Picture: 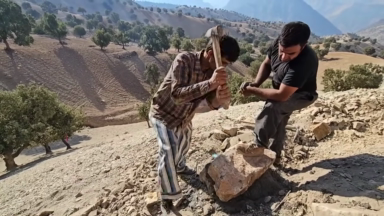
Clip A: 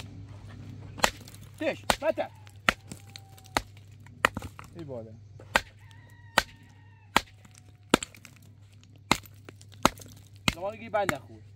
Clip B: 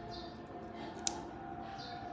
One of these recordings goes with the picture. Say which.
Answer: A